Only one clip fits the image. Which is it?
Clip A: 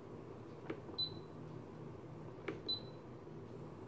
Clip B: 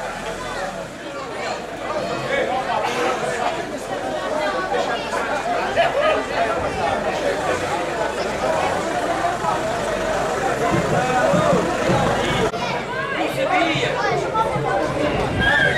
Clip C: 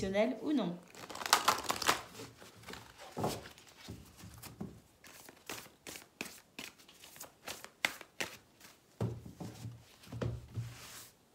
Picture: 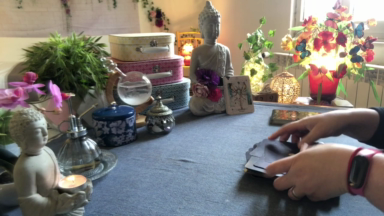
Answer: C